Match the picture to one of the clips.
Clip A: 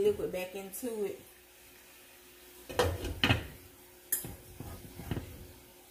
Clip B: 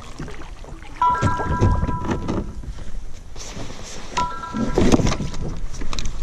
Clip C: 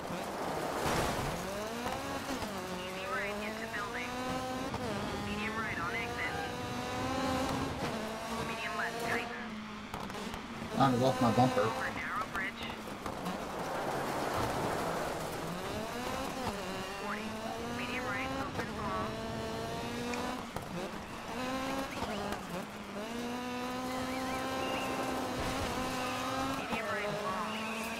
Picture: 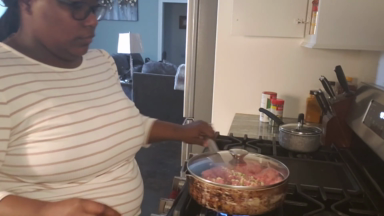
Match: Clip A